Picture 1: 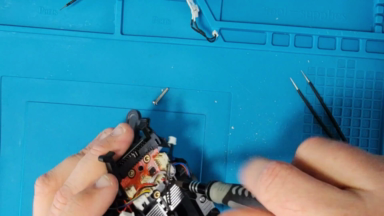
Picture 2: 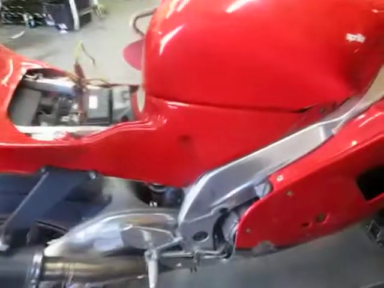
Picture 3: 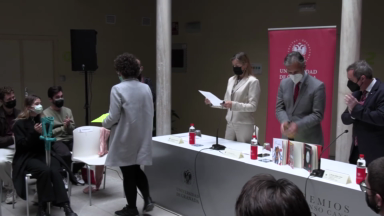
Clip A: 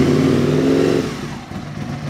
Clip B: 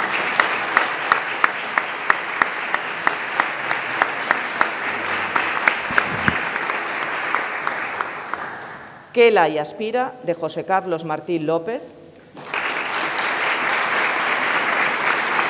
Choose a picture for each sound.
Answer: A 2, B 3